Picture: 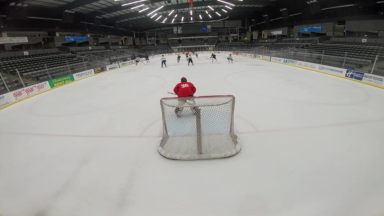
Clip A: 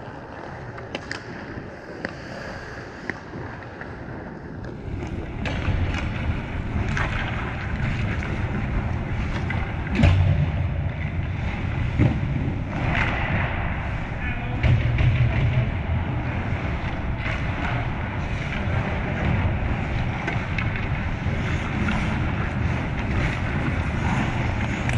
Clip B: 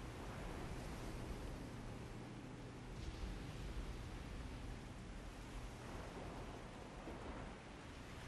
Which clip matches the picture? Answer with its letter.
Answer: A